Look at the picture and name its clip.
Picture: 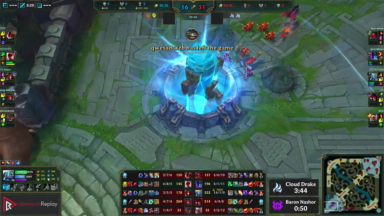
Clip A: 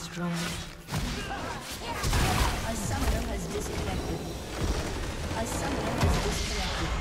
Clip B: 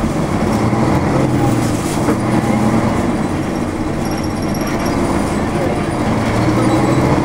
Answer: A